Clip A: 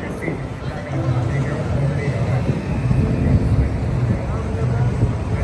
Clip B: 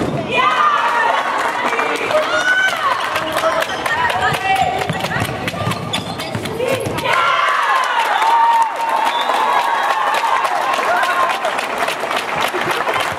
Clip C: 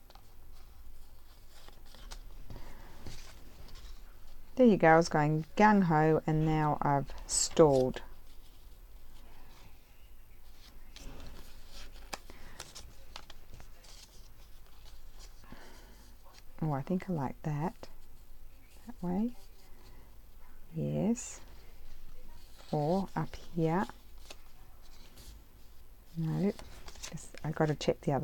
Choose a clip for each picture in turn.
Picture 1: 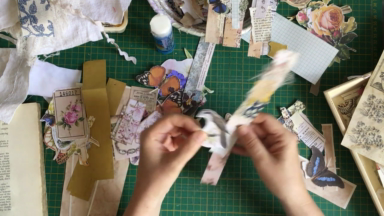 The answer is C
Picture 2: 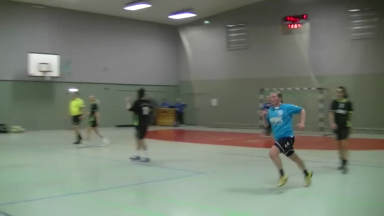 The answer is B